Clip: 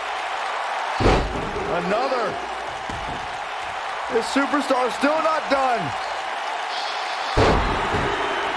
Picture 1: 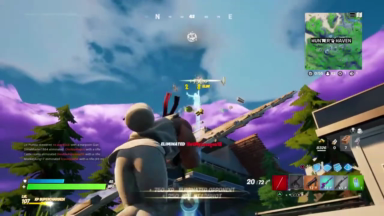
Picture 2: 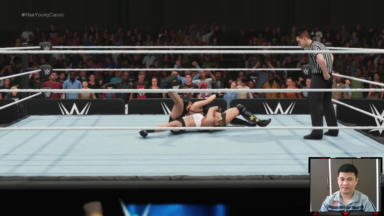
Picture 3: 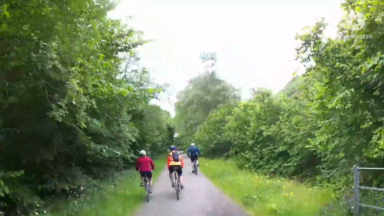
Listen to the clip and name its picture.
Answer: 2